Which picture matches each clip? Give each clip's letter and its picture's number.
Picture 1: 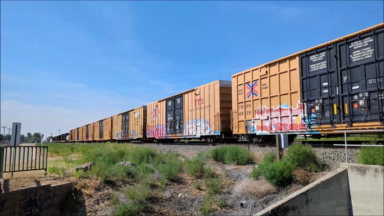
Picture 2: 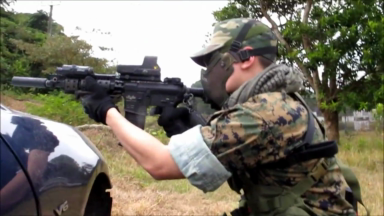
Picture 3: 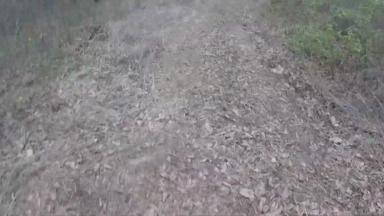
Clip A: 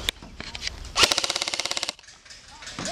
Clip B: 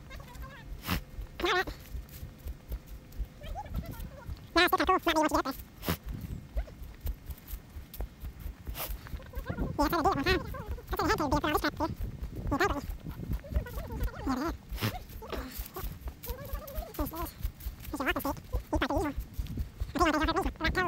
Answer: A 2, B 3